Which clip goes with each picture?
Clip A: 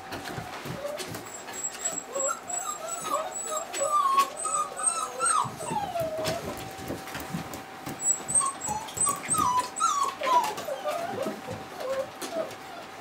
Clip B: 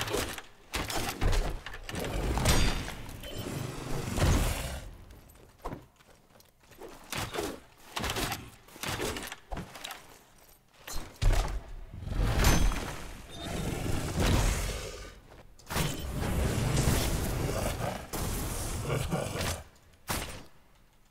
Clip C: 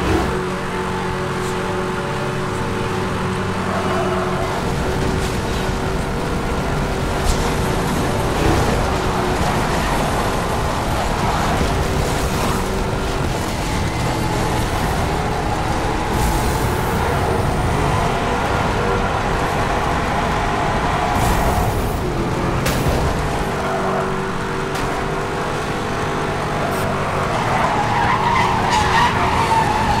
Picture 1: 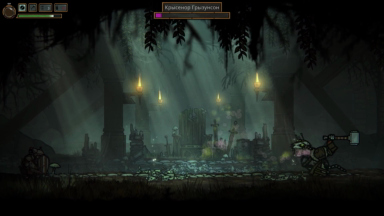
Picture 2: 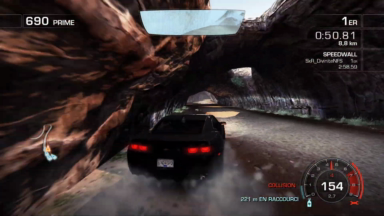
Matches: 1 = B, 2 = C